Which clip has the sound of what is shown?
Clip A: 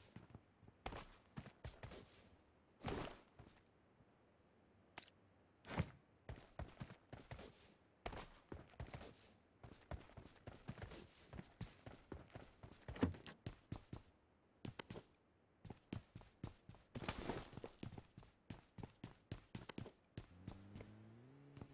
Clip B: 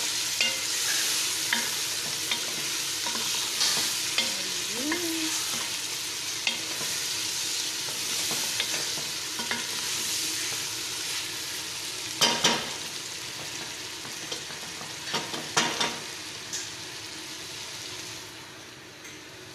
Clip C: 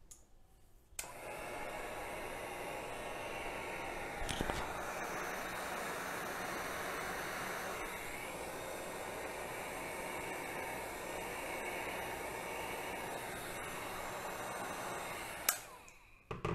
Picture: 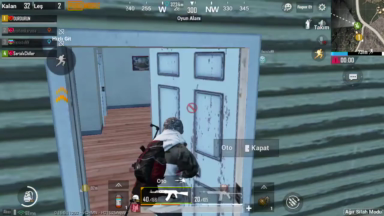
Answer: A